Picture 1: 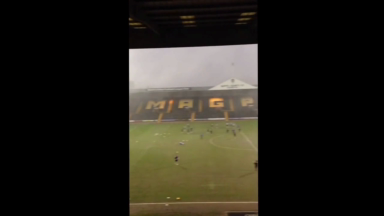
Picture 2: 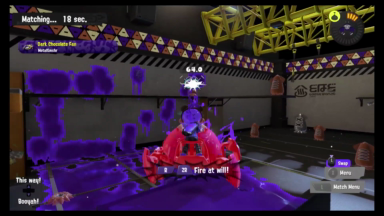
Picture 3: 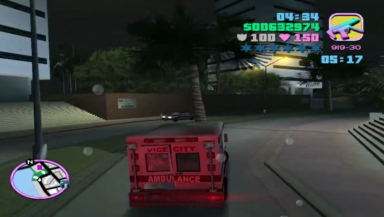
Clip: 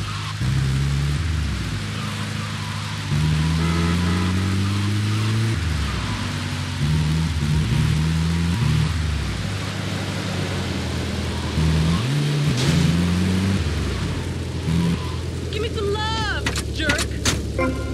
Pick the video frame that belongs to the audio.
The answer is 3